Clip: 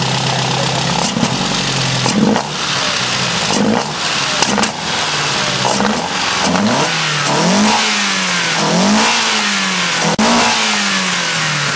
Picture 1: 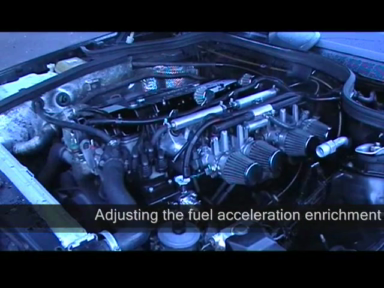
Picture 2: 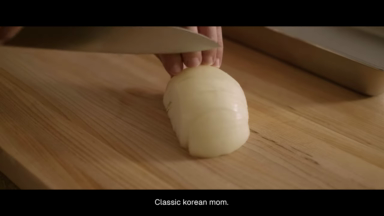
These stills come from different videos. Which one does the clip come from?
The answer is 1